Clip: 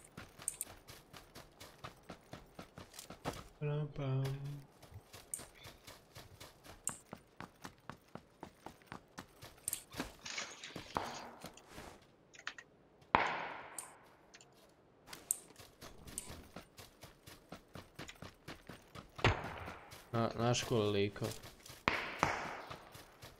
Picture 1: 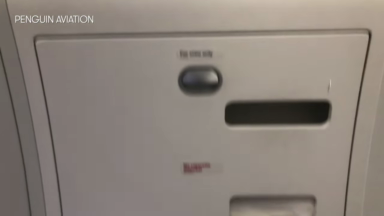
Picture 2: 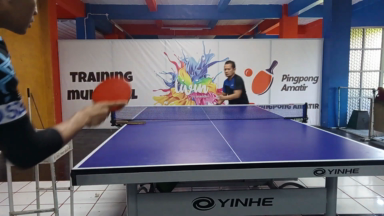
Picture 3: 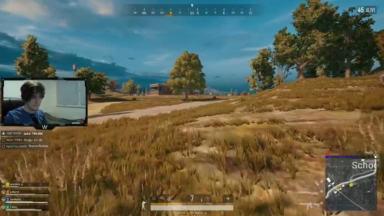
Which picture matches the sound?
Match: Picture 3